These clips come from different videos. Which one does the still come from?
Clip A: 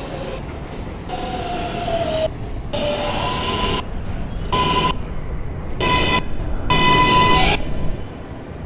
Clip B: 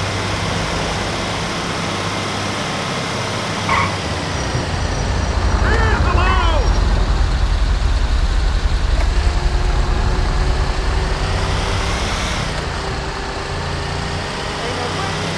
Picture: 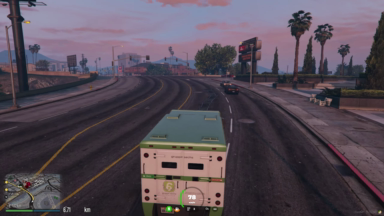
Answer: B